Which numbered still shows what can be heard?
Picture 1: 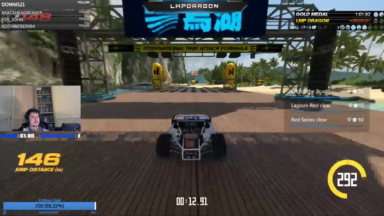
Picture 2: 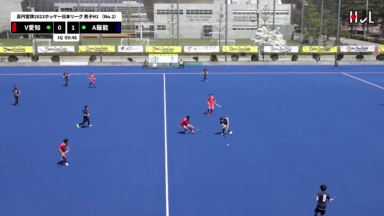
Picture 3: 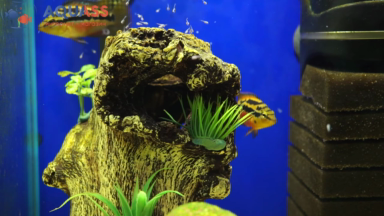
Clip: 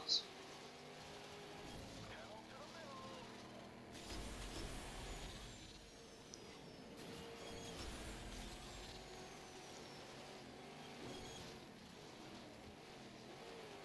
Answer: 1